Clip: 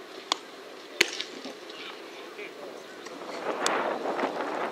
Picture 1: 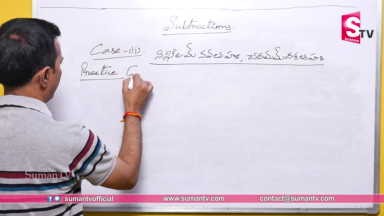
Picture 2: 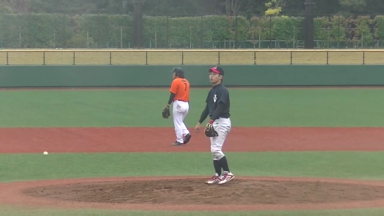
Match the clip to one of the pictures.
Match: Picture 2